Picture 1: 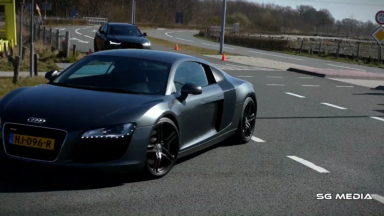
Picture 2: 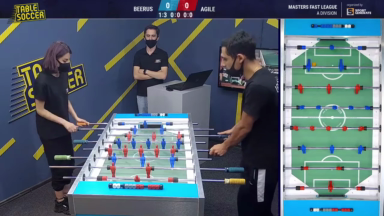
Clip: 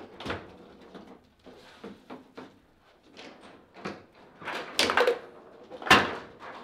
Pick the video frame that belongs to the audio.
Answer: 2